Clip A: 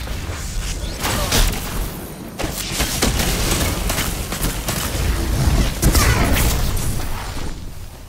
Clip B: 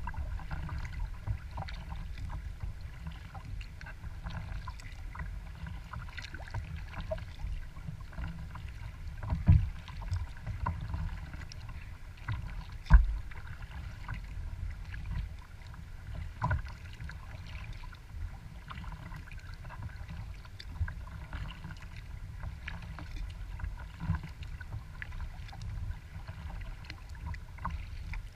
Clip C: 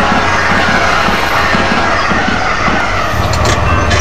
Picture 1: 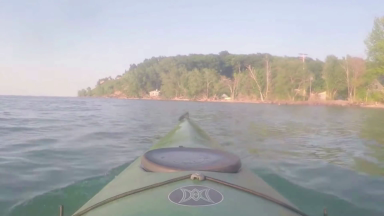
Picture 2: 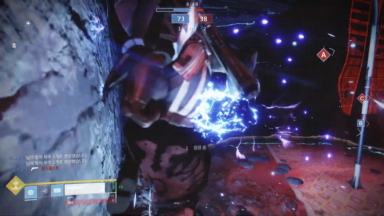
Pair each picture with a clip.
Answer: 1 B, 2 A